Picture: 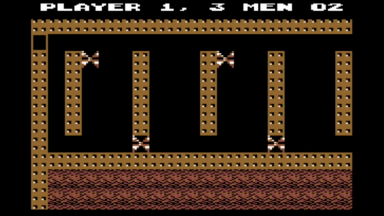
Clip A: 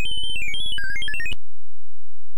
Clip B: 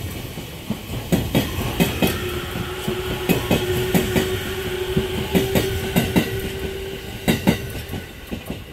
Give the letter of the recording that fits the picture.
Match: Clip A